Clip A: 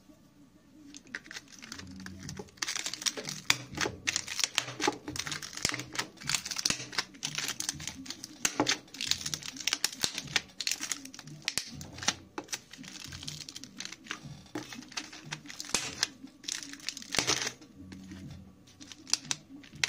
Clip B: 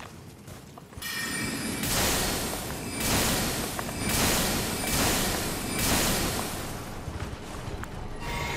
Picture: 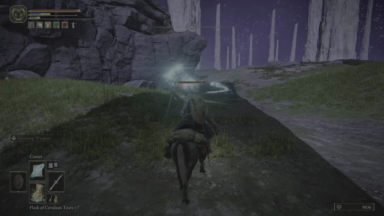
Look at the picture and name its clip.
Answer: B